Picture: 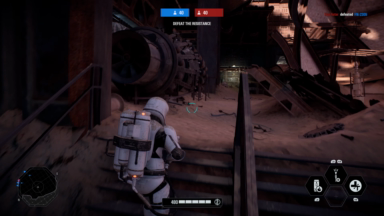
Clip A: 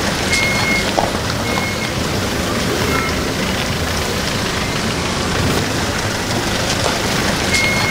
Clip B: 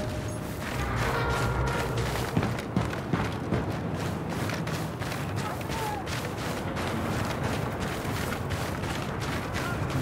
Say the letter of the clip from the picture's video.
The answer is B